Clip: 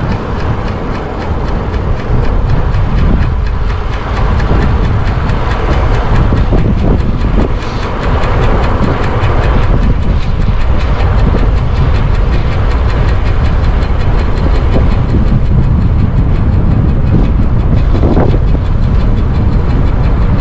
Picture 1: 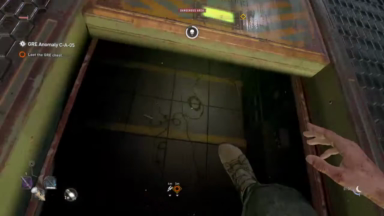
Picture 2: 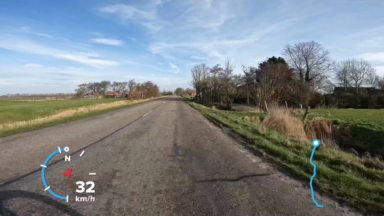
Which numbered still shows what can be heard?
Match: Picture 2